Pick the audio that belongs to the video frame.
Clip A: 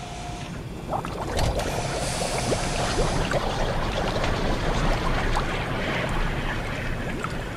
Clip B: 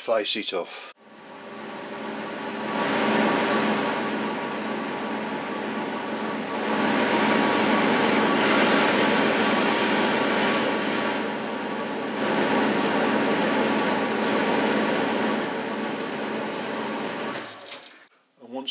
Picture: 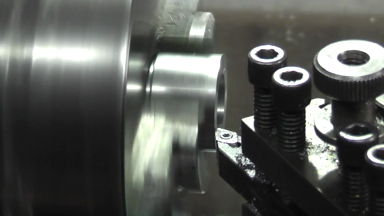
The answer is B